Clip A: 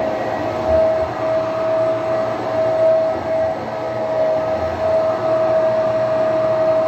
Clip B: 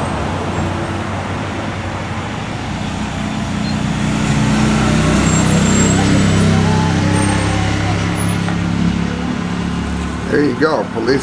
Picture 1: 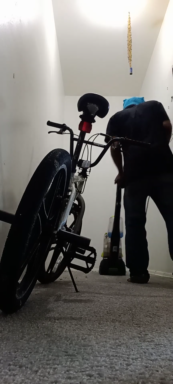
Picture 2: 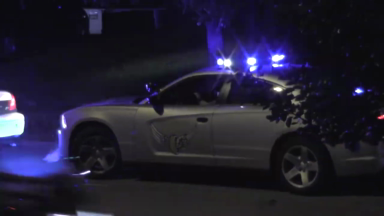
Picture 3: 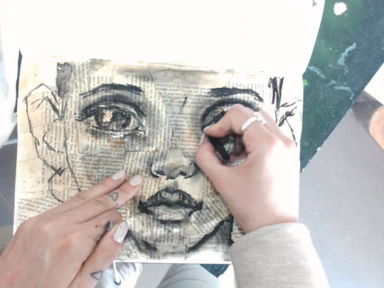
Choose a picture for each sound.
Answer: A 1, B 2